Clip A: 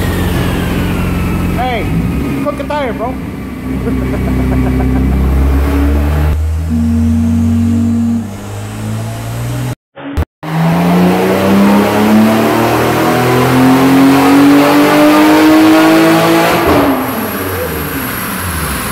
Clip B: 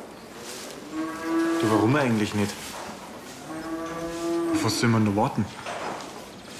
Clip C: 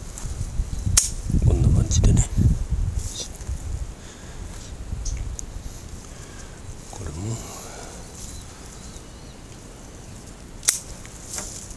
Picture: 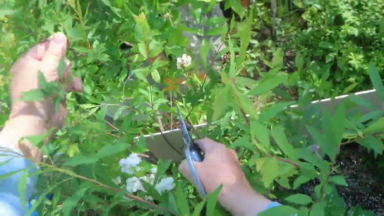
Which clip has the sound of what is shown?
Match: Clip C